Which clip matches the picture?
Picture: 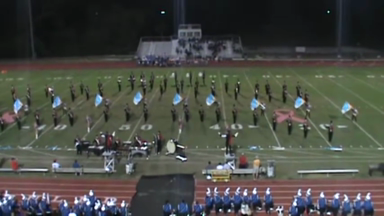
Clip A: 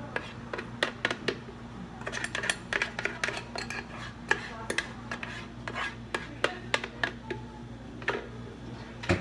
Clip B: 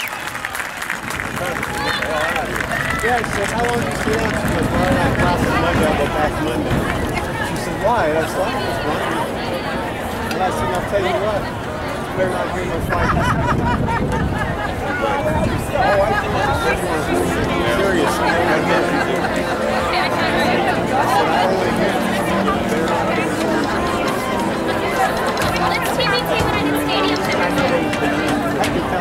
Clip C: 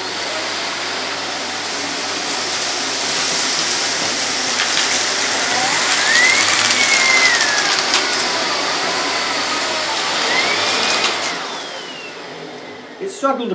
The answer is B